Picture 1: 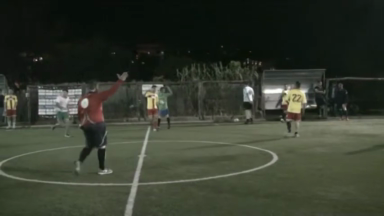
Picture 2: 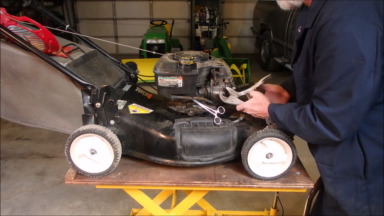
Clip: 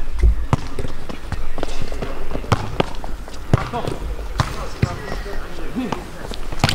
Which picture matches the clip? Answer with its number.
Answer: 1